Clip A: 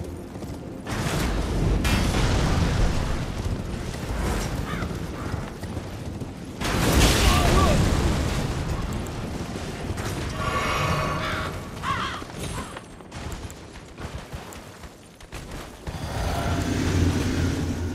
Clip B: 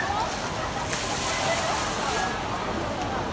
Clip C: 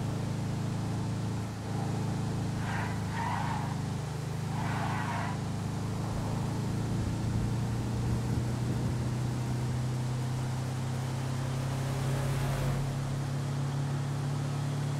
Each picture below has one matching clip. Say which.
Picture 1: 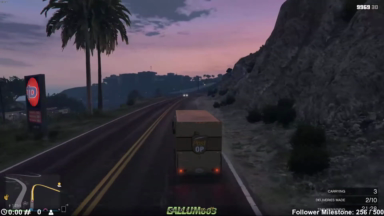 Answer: C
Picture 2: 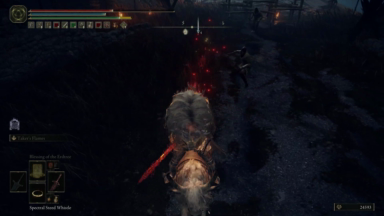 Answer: A